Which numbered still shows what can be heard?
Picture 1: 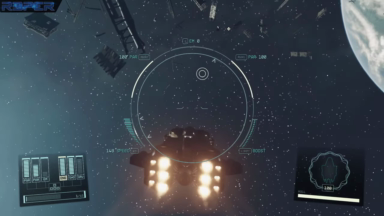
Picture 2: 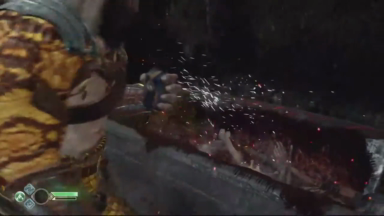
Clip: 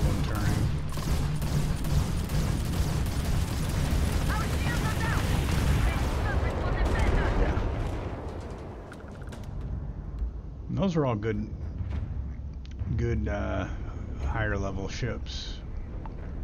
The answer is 1